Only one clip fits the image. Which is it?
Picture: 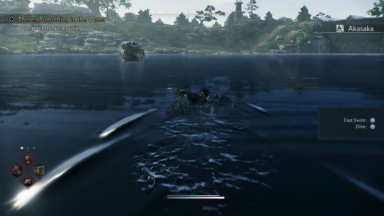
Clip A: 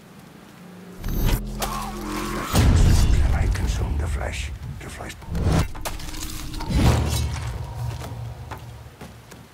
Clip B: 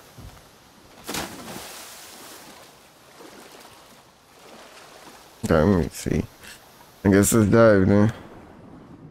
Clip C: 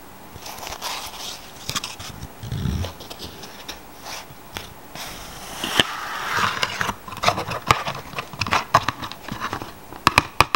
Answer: B